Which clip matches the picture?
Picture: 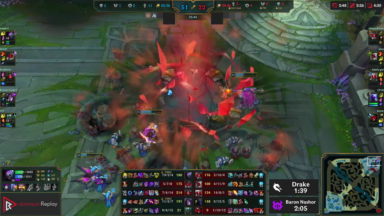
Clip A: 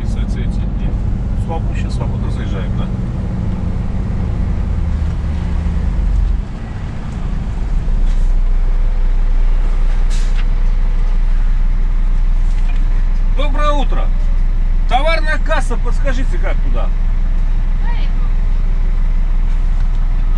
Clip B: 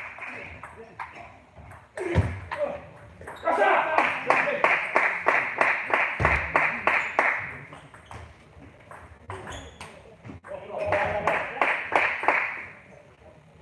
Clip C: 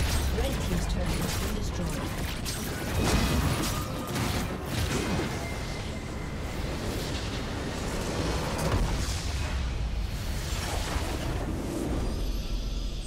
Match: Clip C